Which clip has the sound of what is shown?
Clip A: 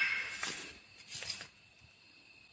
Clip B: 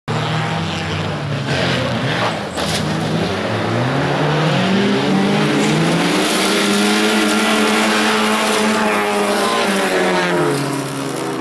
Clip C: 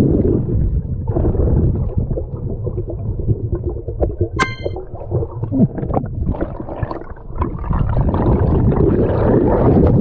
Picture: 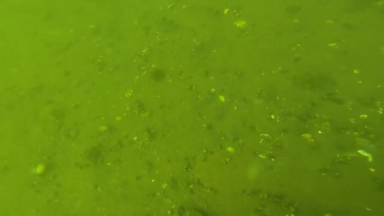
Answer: C